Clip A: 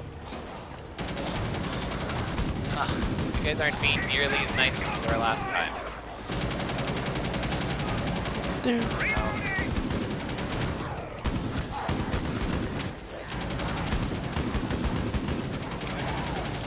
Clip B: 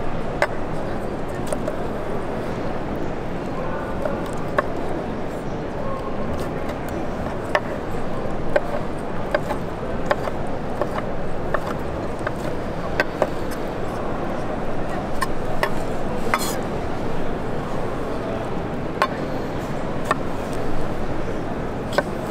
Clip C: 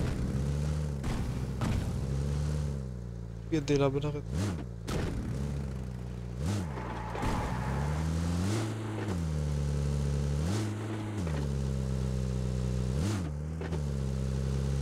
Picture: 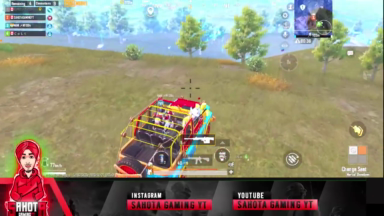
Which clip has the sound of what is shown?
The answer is C